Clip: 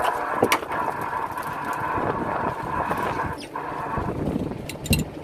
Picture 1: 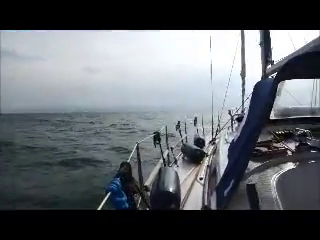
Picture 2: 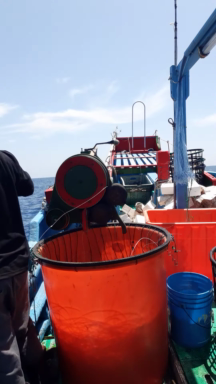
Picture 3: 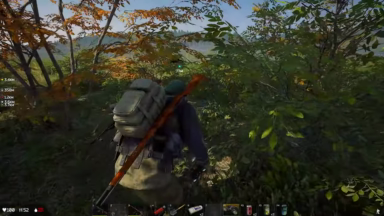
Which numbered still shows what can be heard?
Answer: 2